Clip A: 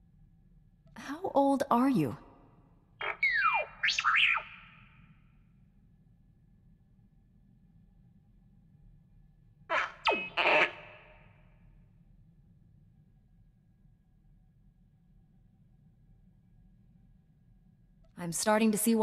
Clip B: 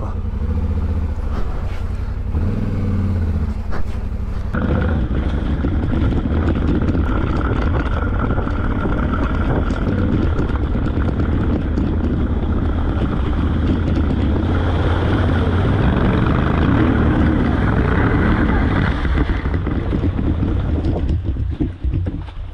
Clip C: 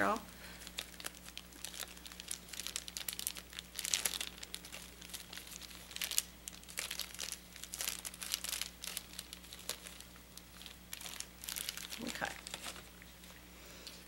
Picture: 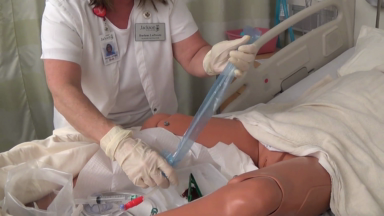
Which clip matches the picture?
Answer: C